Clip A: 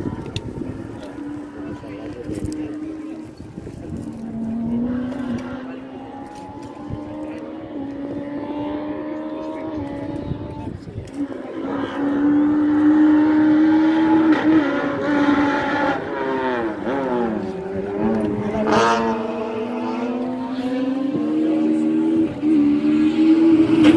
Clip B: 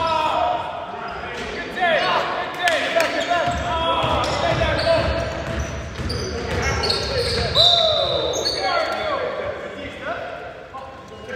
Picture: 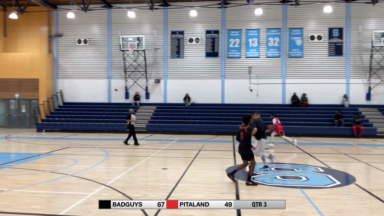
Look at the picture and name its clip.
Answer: B